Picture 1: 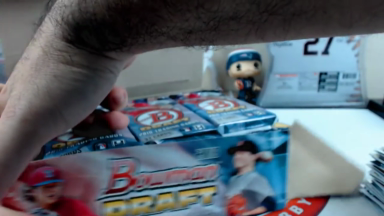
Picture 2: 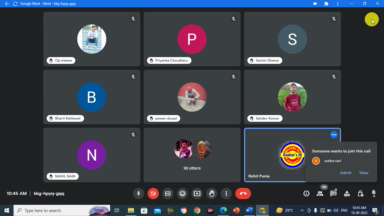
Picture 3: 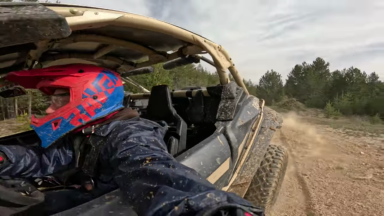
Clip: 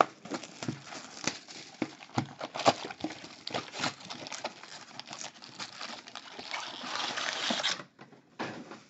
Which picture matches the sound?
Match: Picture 1